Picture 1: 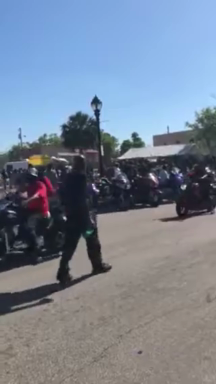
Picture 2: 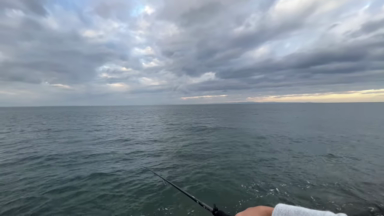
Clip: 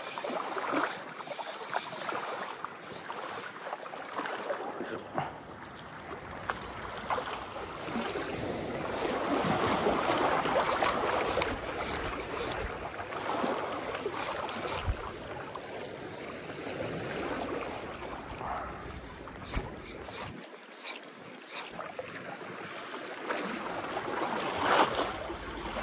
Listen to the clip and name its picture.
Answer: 2